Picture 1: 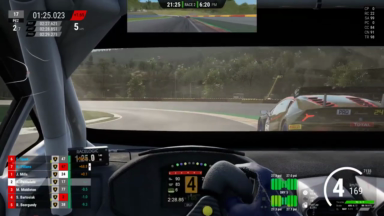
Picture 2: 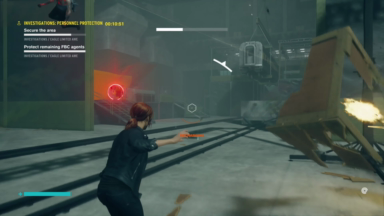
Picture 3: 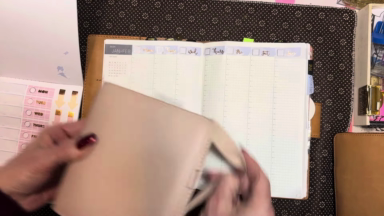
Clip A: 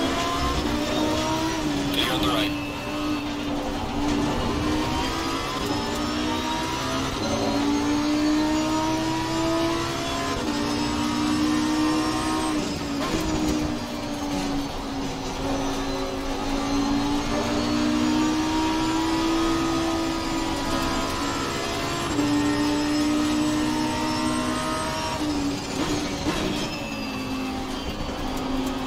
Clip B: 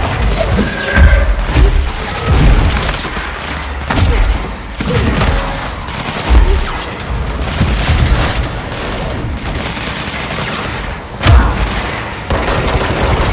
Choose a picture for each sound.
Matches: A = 1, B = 2